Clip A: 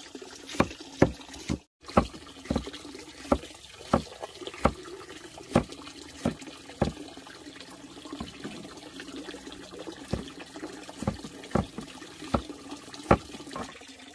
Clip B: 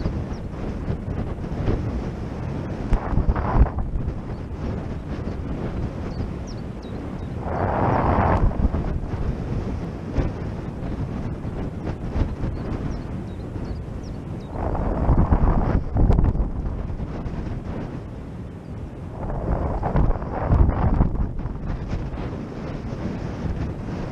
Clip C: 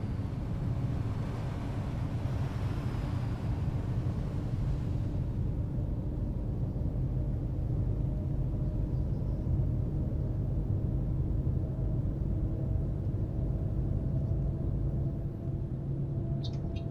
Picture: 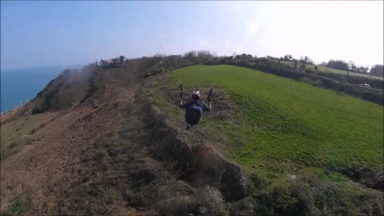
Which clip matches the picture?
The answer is B